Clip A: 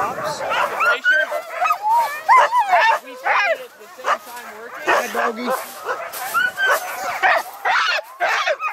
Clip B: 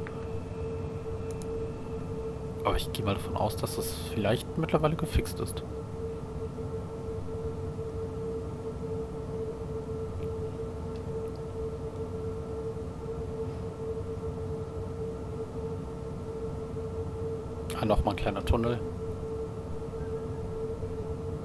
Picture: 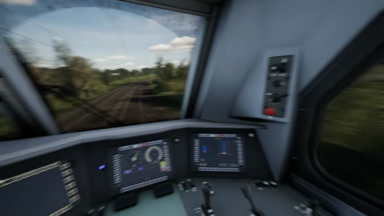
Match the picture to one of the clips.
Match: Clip B